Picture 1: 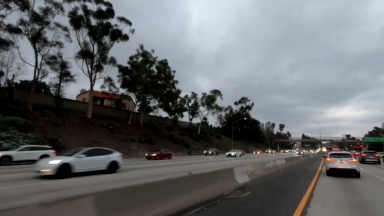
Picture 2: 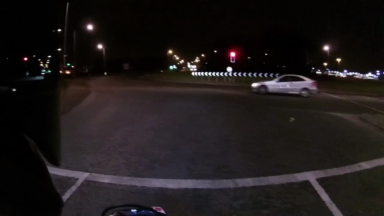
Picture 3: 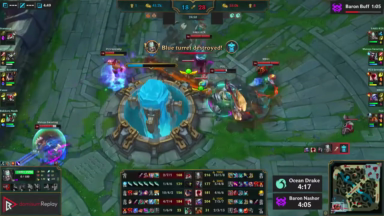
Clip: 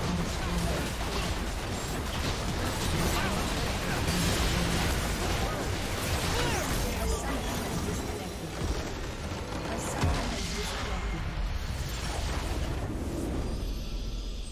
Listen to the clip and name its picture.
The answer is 3